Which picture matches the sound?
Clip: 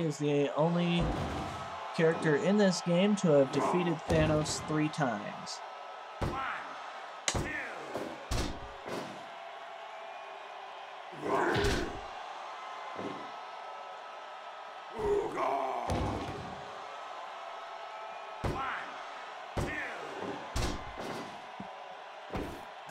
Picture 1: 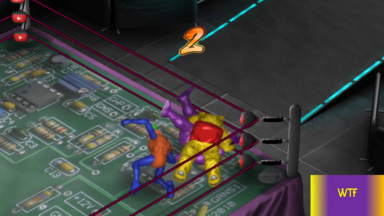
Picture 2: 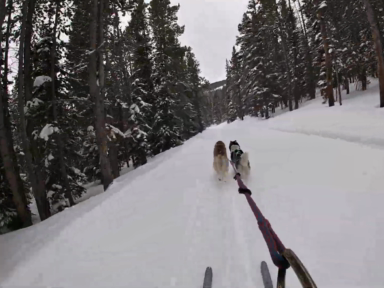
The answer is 1